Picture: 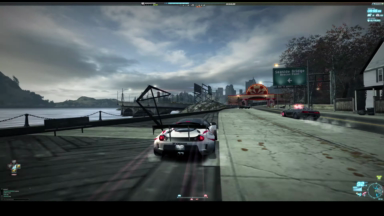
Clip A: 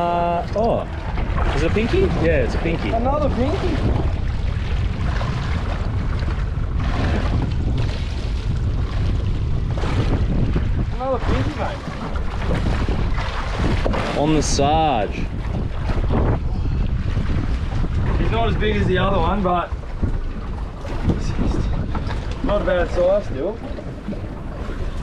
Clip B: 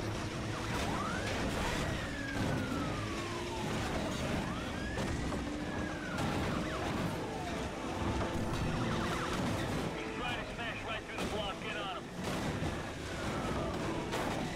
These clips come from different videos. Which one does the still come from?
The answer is B